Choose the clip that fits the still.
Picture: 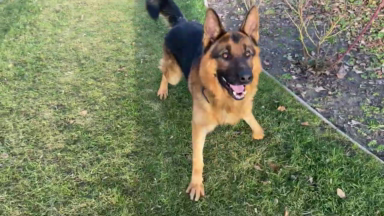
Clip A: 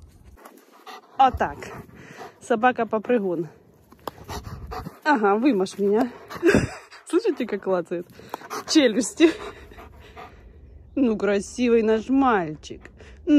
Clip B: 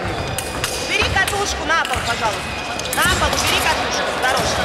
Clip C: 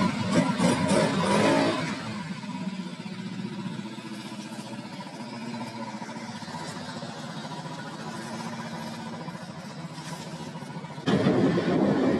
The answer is A